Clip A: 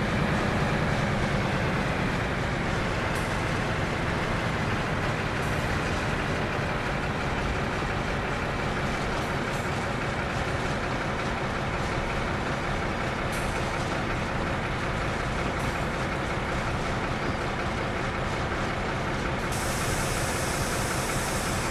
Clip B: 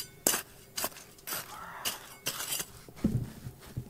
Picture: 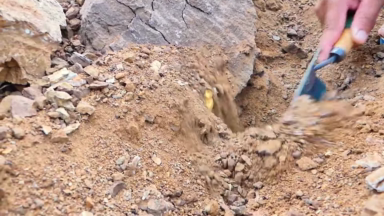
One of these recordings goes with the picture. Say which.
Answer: B